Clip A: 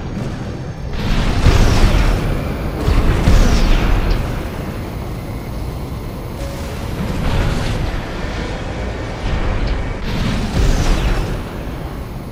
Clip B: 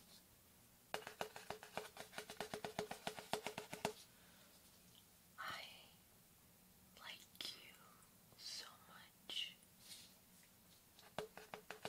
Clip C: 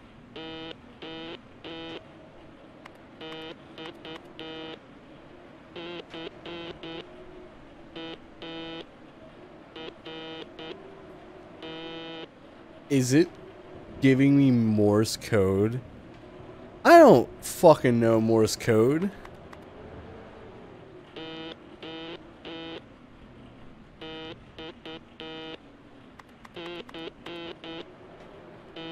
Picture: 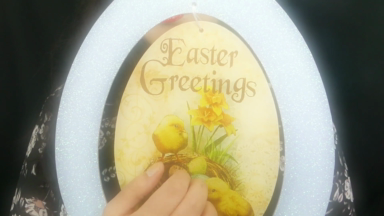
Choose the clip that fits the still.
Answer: B